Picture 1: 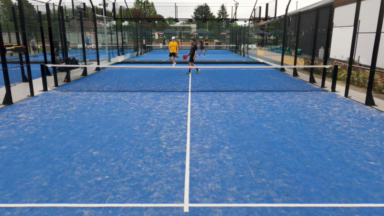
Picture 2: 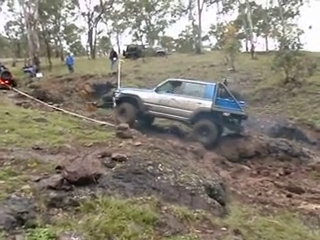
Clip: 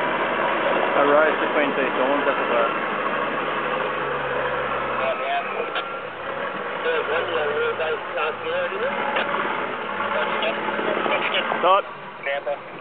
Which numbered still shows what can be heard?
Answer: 2